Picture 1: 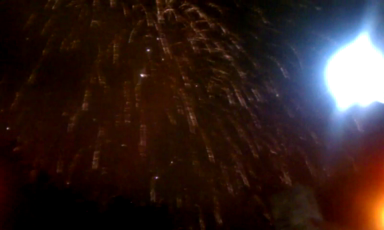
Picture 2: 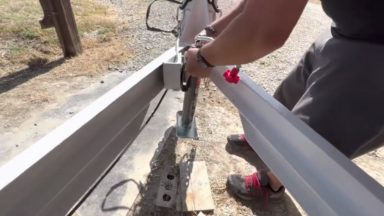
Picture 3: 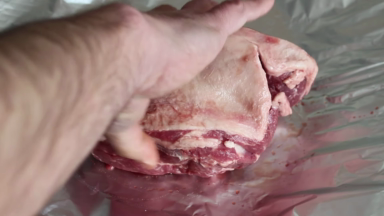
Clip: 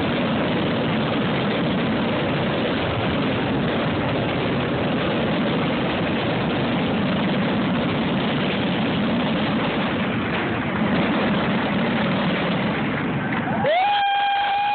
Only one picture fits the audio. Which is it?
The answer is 1